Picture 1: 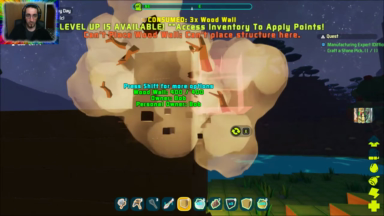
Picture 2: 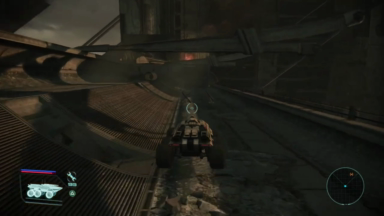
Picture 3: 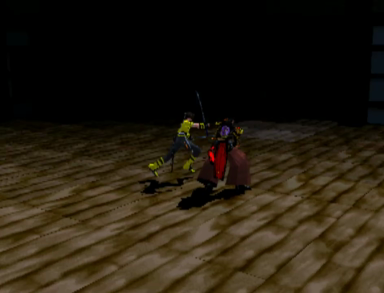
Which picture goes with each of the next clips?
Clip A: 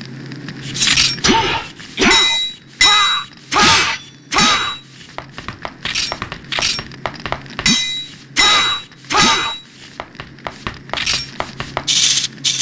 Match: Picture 3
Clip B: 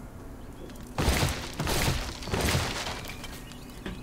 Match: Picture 1